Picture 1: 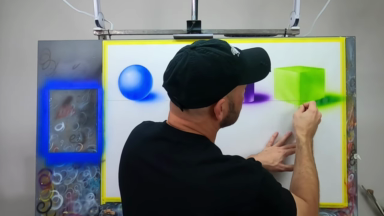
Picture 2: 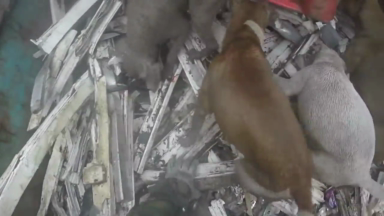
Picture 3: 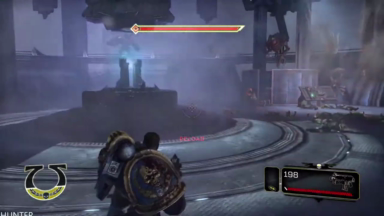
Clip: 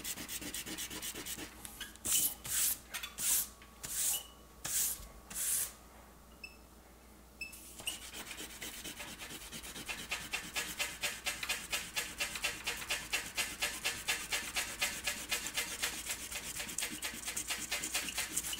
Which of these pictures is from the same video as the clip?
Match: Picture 1